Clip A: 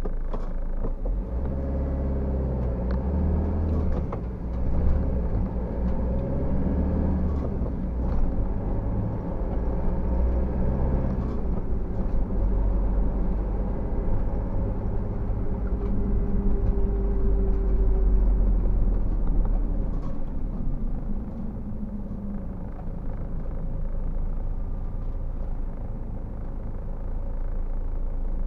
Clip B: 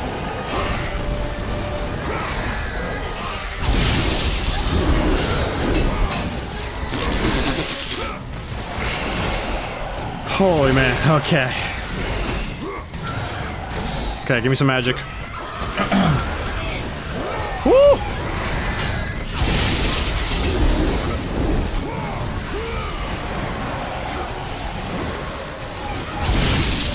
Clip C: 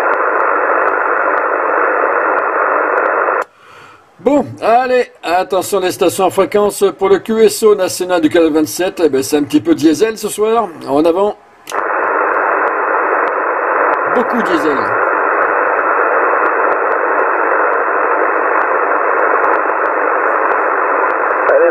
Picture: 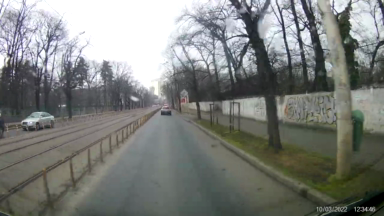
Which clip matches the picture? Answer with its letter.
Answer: A